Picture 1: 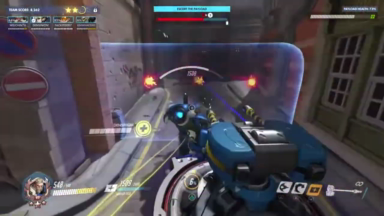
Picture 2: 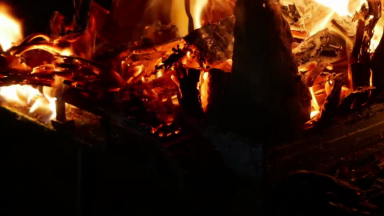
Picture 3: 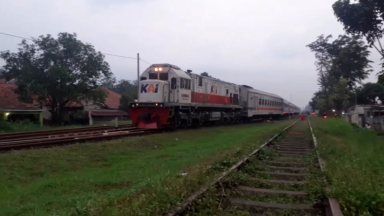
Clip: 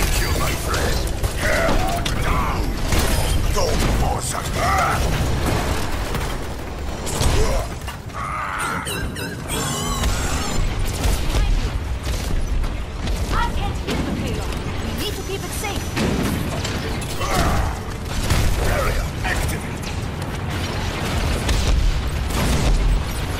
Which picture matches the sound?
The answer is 1